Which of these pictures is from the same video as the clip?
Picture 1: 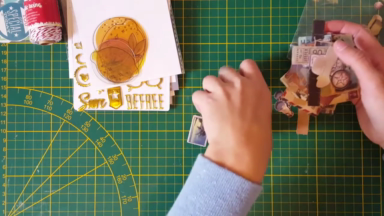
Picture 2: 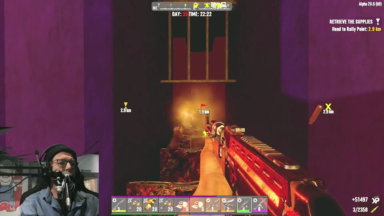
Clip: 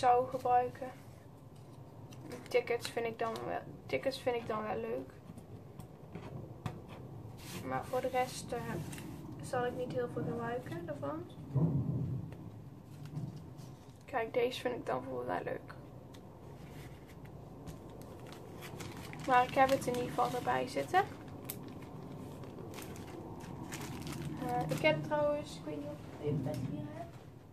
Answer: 1